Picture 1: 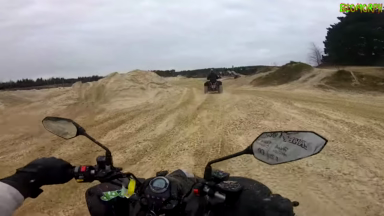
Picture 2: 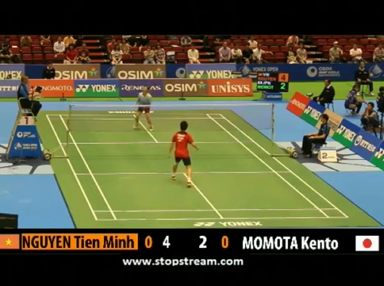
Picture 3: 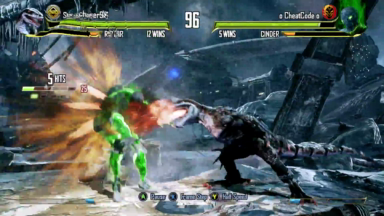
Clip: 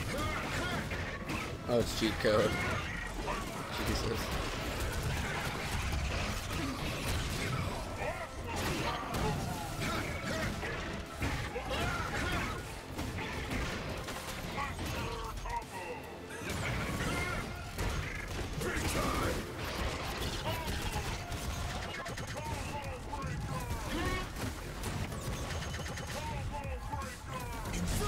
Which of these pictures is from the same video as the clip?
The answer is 3